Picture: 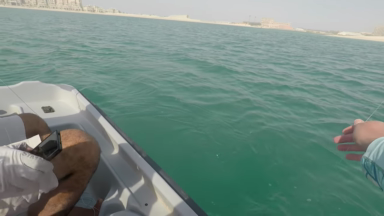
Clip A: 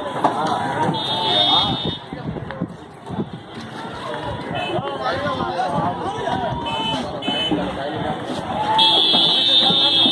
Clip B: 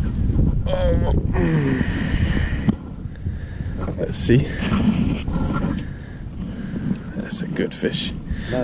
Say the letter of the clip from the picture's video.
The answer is B